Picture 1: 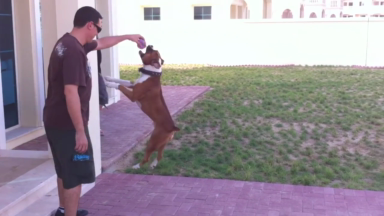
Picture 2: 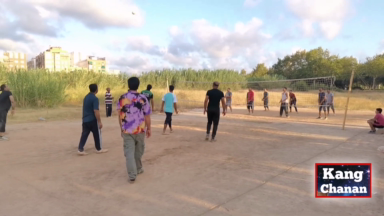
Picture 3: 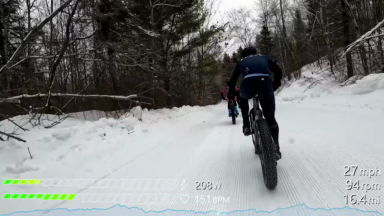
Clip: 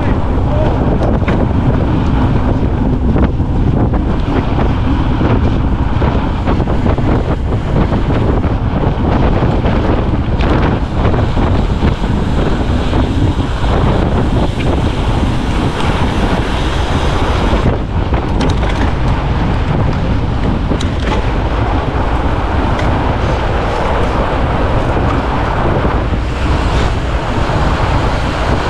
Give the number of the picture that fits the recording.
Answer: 3